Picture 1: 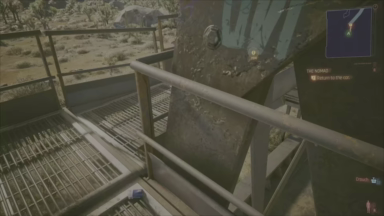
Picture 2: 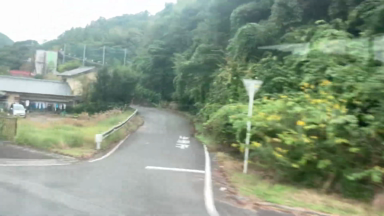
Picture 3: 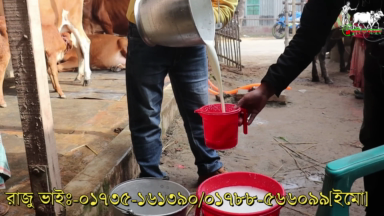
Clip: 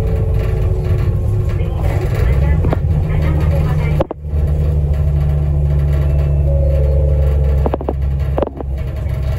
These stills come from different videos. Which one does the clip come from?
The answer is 2